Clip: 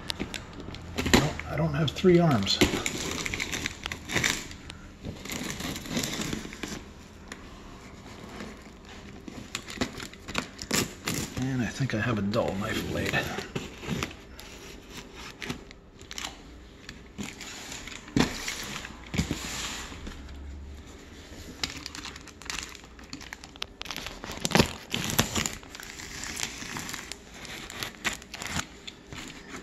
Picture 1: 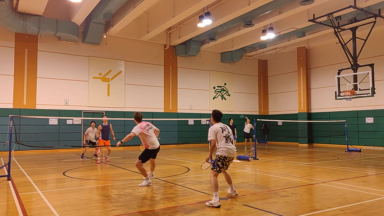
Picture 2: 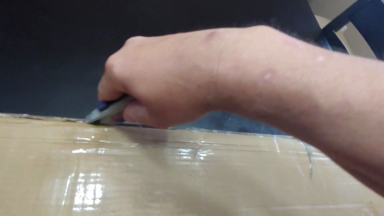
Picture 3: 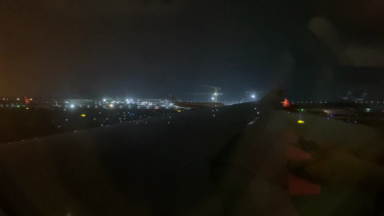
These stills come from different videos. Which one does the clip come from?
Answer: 2